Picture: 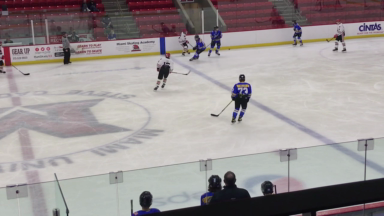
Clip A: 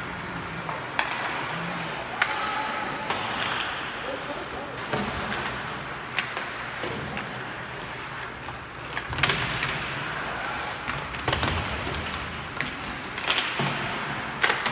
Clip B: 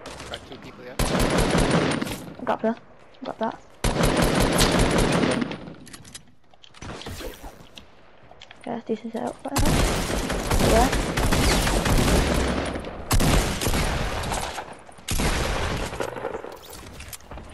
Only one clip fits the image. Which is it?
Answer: A